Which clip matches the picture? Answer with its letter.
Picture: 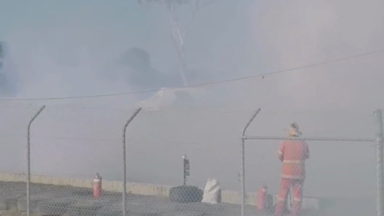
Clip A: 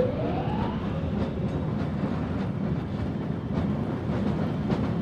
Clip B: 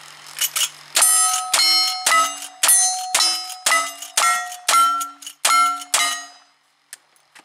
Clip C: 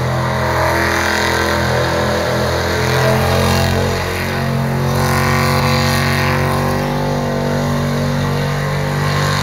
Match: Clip C